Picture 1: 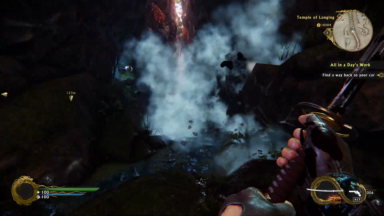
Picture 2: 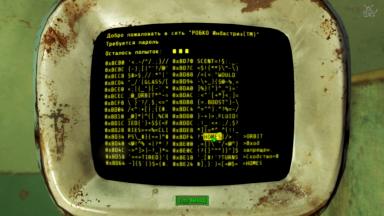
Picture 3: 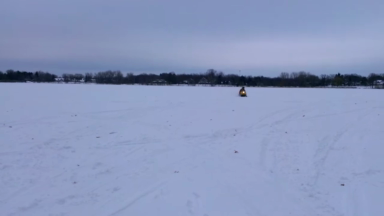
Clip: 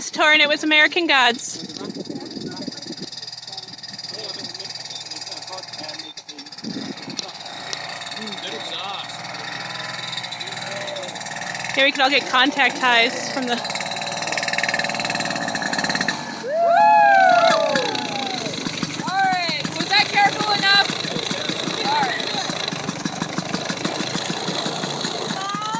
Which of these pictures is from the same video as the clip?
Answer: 3